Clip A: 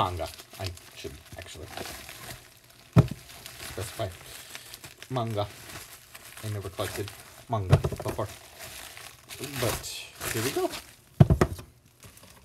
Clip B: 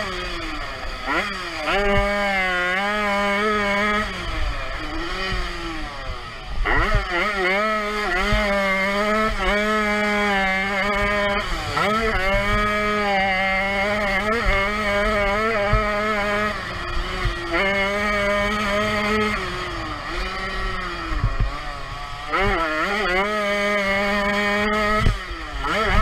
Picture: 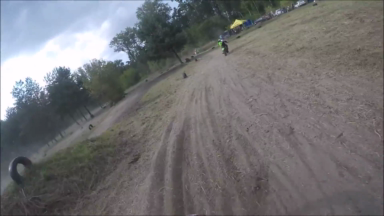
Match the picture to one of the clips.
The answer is B